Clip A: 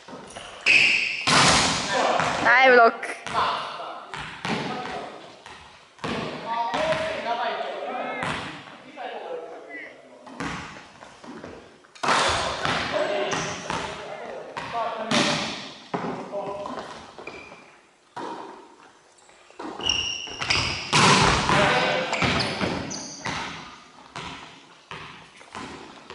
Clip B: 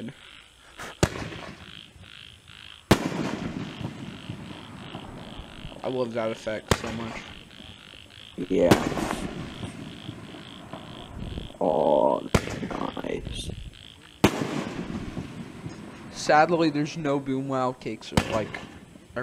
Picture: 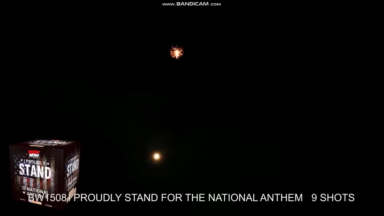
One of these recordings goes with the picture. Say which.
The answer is B